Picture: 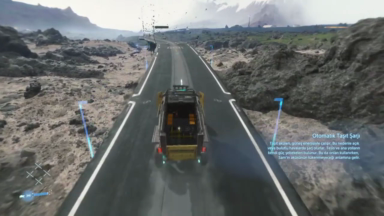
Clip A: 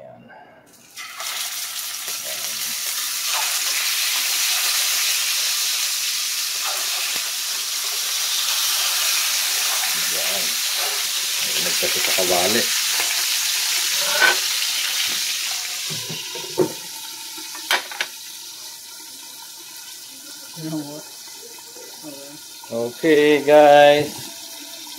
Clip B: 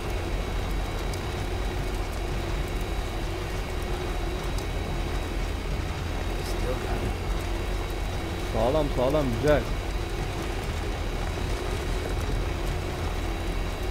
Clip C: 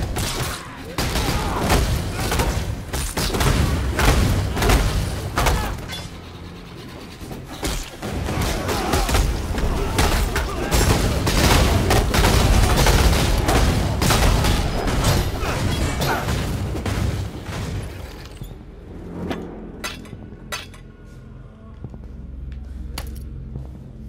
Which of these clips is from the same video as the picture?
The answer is B